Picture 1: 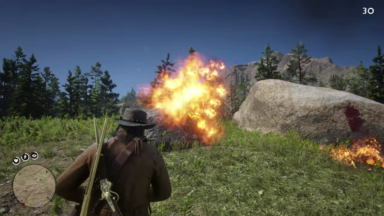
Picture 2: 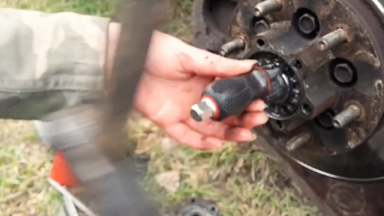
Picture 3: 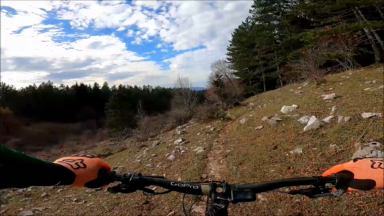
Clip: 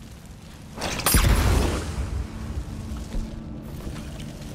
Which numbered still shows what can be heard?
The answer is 1